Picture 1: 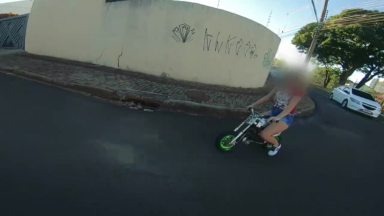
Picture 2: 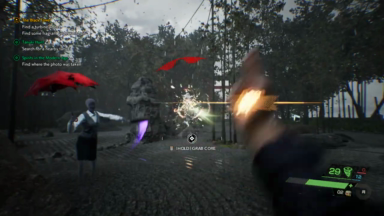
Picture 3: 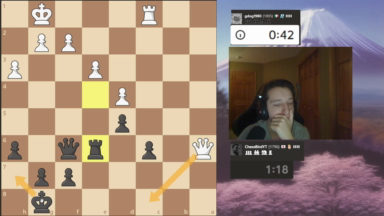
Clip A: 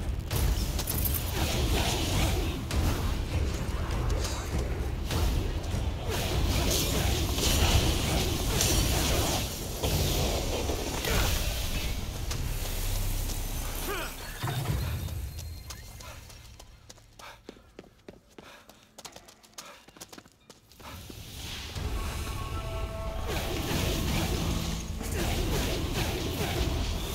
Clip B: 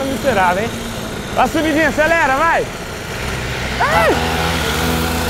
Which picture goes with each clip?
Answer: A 2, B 1